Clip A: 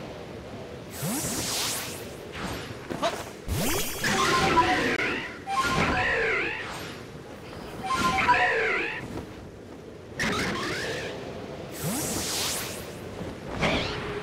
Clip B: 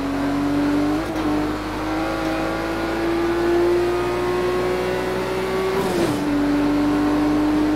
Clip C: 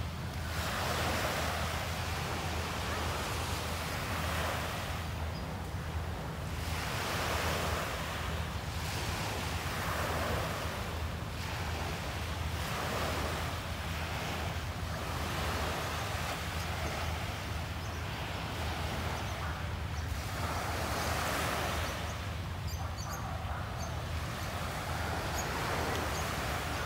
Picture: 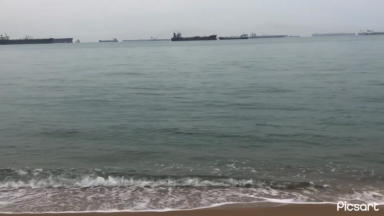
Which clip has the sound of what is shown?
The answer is C